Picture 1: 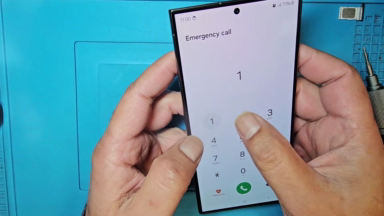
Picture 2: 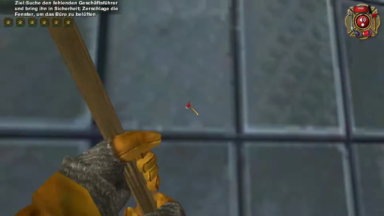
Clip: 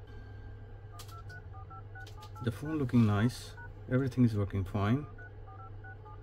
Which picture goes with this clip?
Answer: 1